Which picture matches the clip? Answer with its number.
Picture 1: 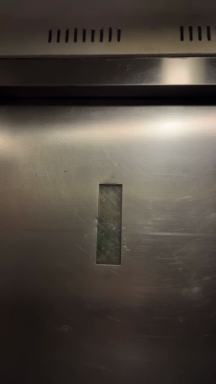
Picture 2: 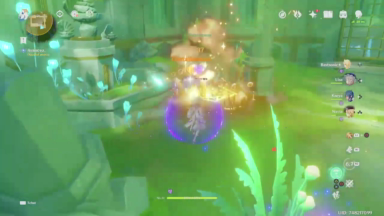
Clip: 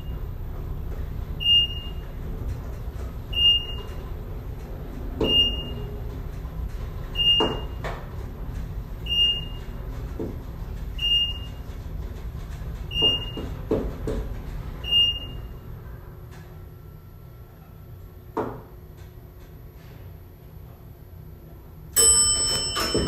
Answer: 1